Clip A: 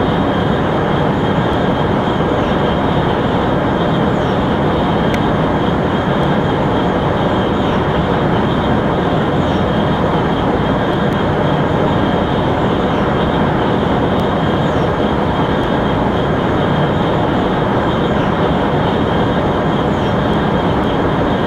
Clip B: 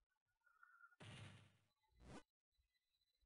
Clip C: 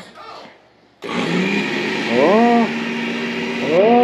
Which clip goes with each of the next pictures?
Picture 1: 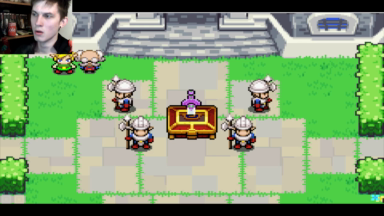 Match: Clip B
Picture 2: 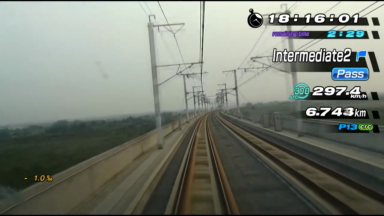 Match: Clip A